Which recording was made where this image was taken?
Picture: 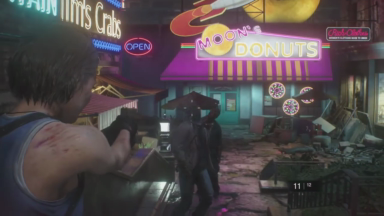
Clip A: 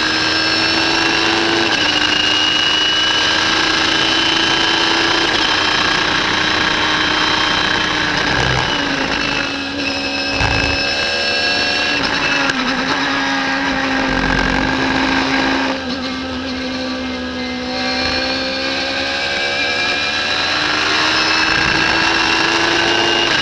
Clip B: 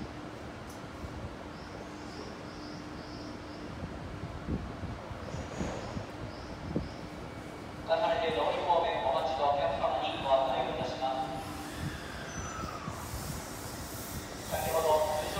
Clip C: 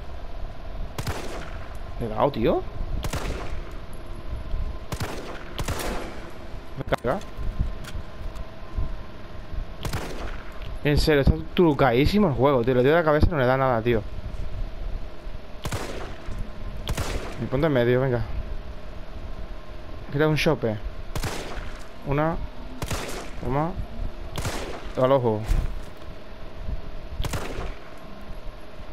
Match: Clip C